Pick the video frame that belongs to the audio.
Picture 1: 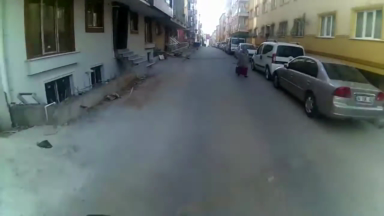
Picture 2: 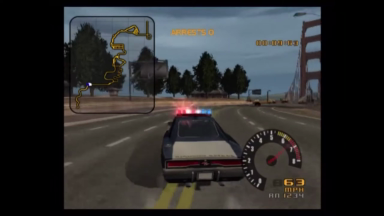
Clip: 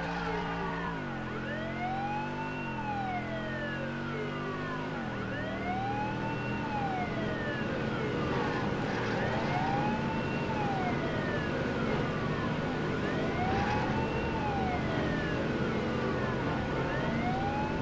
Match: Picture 2